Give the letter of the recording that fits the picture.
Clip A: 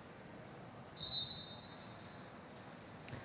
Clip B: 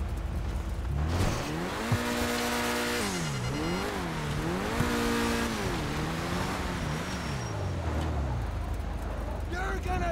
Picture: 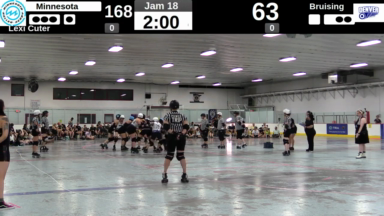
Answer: A